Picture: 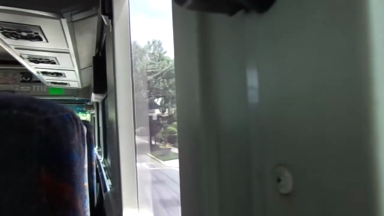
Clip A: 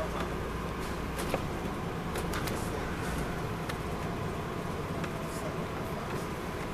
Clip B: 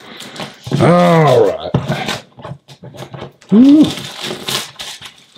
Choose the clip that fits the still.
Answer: A